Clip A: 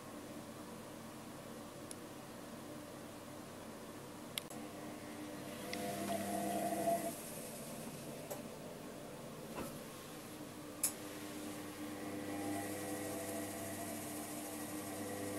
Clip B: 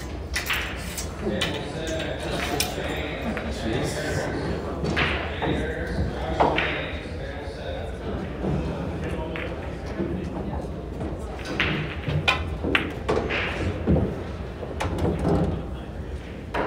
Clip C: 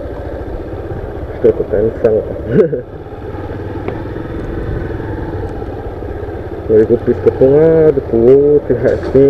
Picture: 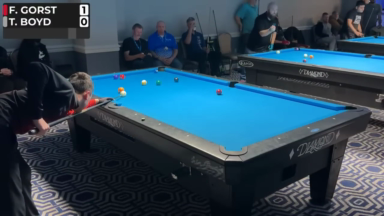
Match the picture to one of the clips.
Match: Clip B